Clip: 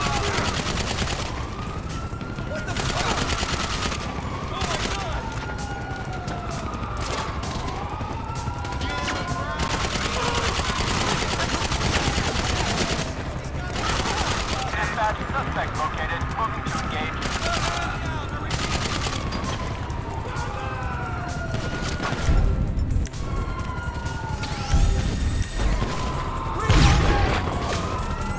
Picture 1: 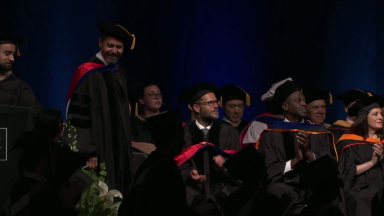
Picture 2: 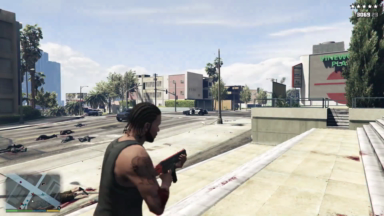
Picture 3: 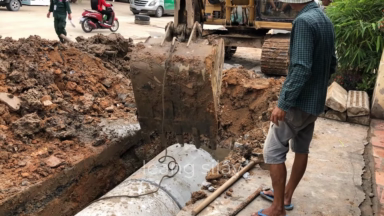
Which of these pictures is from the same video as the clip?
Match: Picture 2